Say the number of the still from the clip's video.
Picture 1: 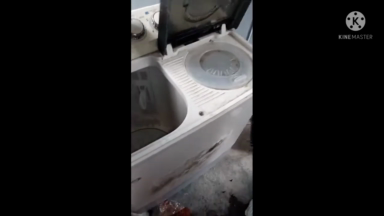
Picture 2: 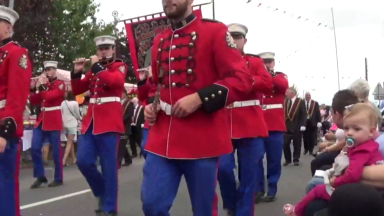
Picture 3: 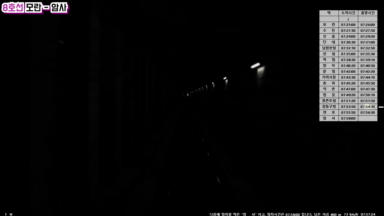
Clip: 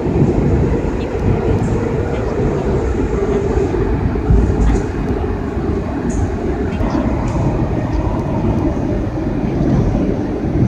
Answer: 3